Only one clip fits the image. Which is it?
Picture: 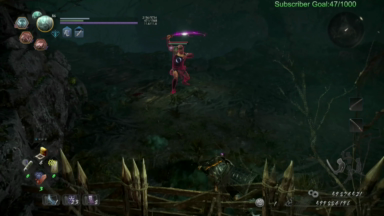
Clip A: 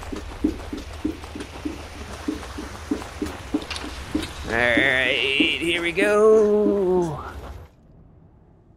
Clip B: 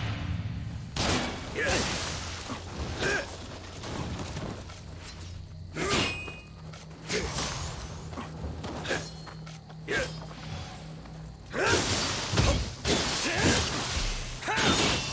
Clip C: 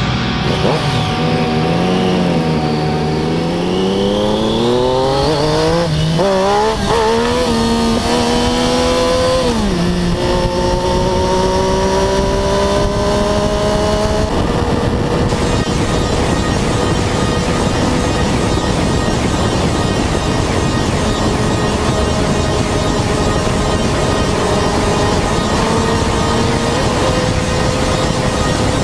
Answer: B